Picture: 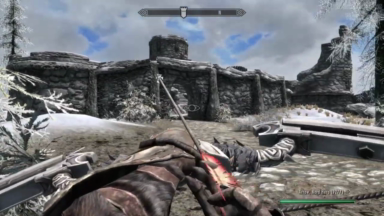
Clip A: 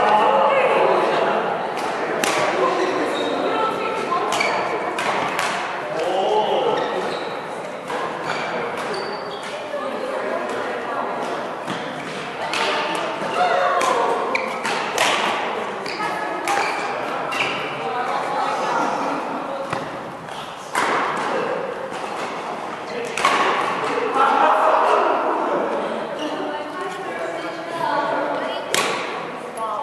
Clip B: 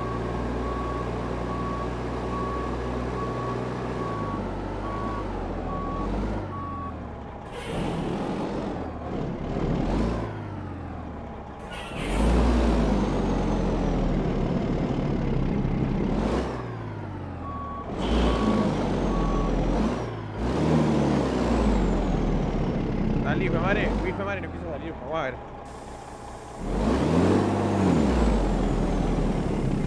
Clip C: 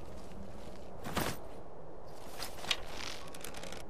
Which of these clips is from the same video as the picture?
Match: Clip C